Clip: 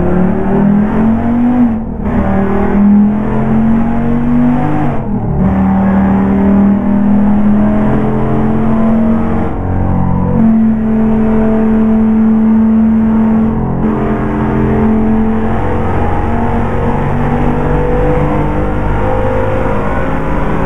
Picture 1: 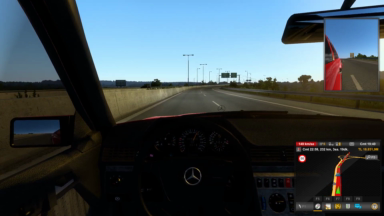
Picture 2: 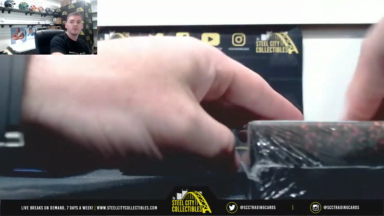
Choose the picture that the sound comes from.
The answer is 1